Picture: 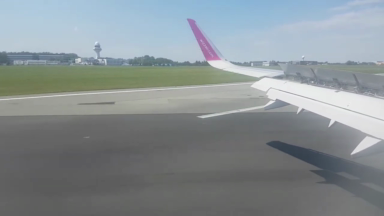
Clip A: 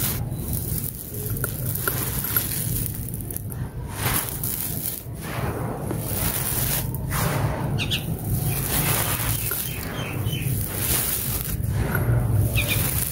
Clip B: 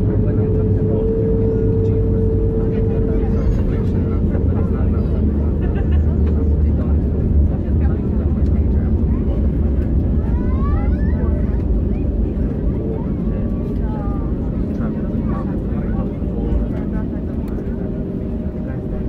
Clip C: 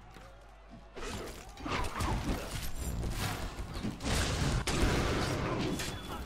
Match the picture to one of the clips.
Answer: B